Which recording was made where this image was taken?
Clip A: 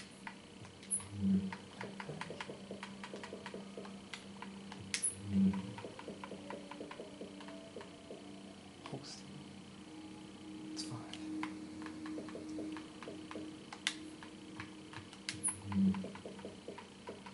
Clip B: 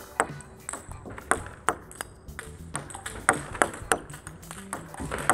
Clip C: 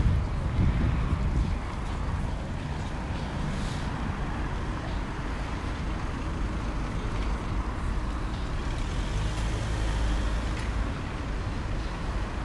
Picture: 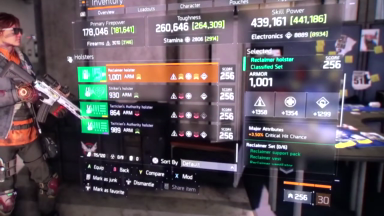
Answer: A